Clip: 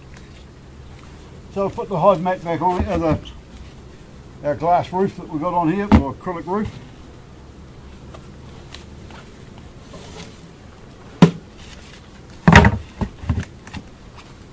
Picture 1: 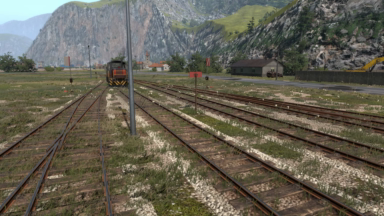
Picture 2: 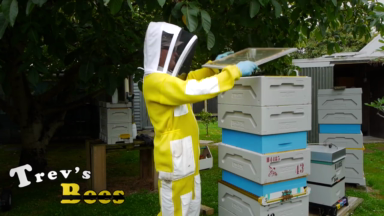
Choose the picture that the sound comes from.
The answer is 2